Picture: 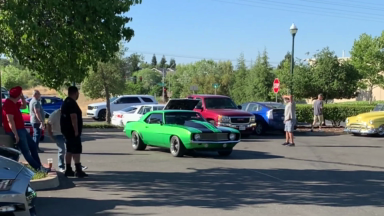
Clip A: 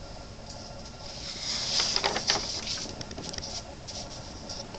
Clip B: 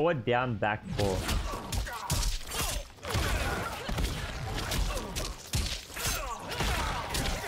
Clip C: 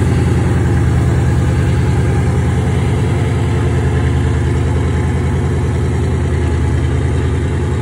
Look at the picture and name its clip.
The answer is C